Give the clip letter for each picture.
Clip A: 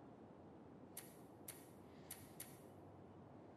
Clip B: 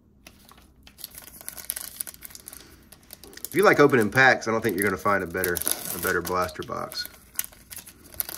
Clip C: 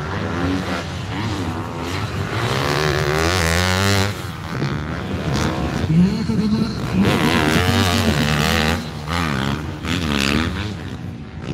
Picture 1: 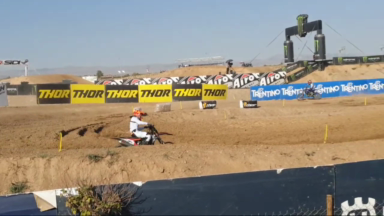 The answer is C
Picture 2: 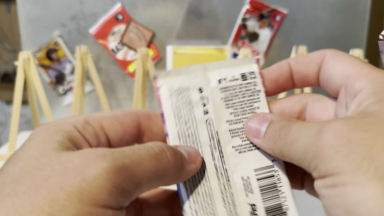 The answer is B